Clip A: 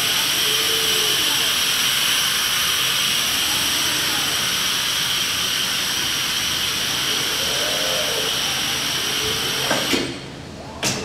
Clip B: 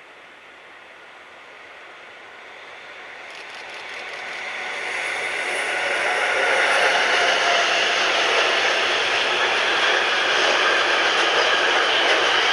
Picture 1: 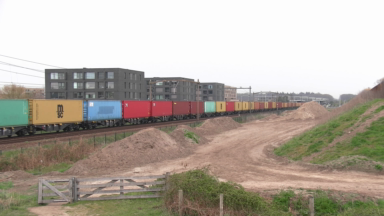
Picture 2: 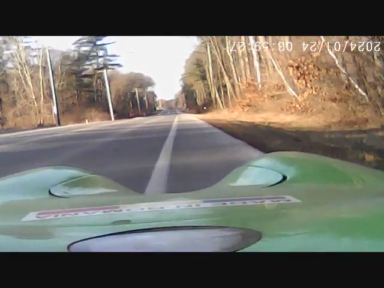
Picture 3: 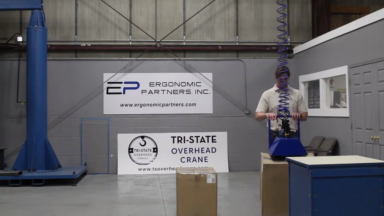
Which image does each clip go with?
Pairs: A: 3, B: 1